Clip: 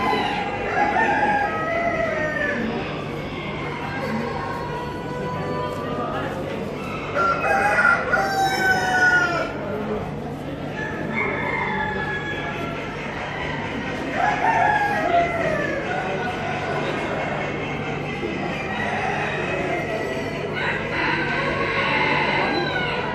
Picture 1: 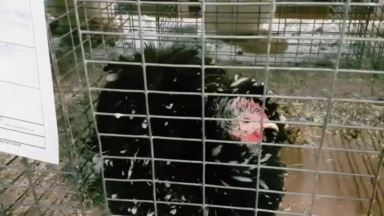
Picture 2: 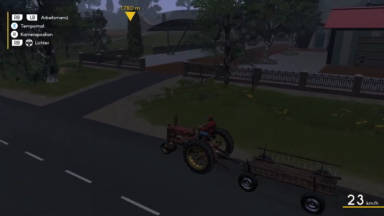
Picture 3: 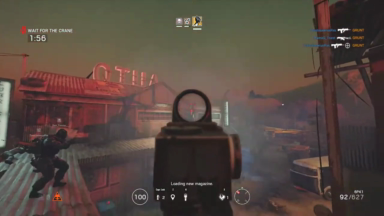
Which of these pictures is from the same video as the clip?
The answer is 1